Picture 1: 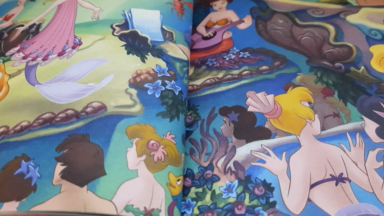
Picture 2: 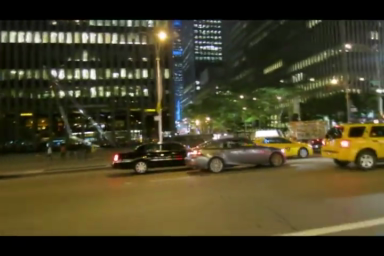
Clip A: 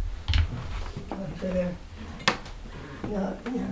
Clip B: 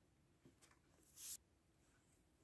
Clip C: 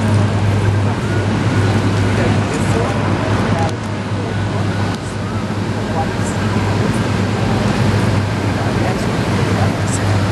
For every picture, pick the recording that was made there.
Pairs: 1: B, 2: C